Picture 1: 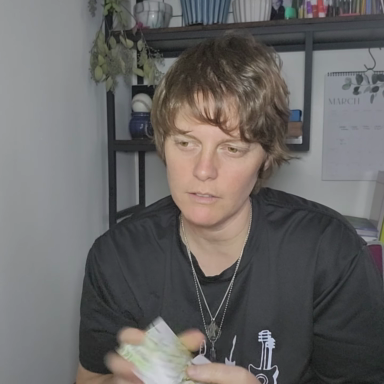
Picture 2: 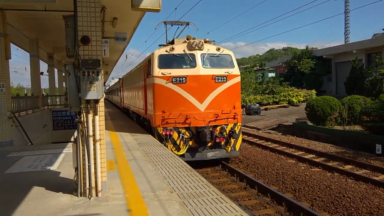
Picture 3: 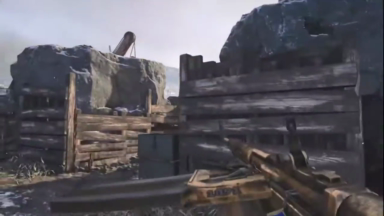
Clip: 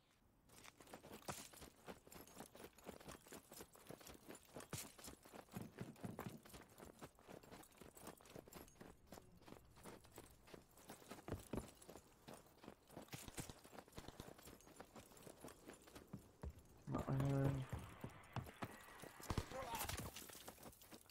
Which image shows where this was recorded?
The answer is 3